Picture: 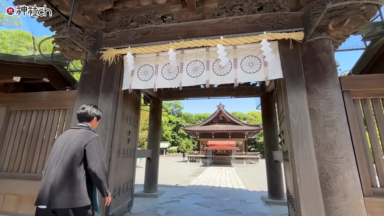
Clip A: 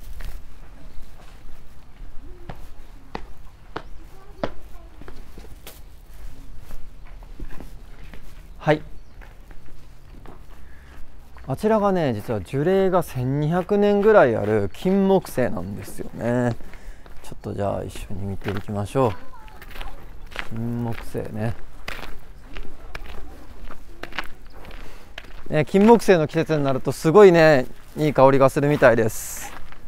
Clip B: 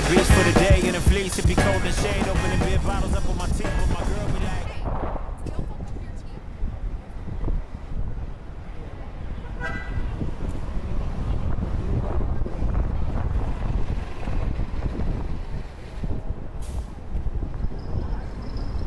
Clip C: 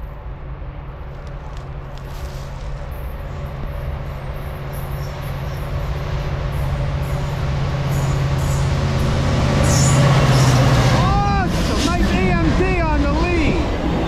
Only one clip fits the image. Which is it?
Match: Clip A